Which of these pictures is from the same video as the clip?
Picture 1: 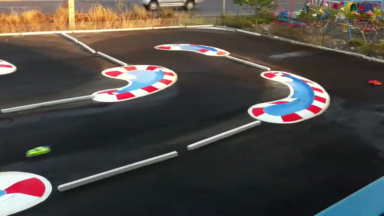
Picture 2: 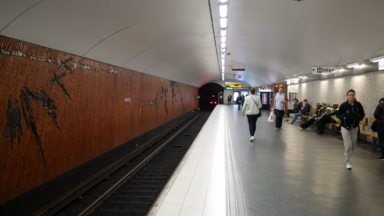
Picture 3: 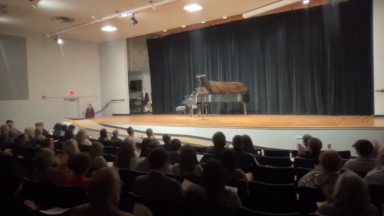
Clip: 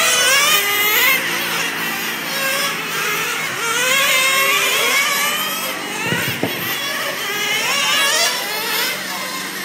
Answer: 1